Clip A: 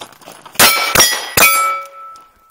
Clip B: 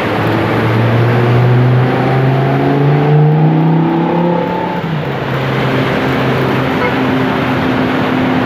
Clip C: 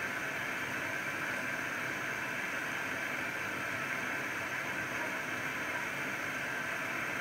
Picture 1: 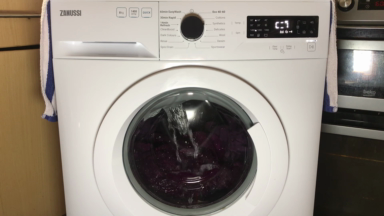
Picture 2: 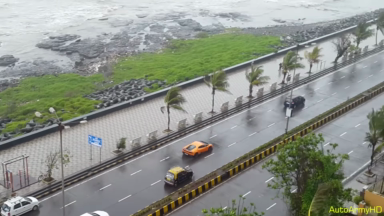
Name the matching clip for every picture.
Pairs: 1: C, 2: B